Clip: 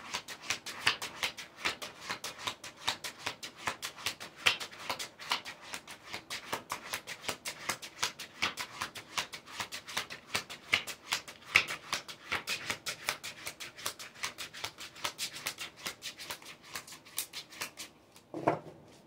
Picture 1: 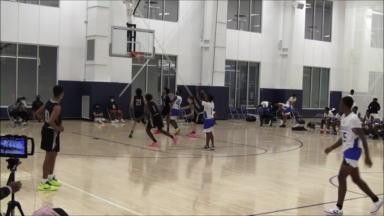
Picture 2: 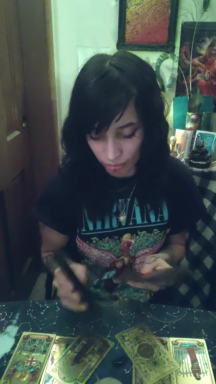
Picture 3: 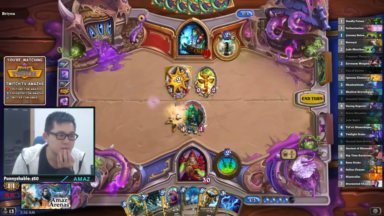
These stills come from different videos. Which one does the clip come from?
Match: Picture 2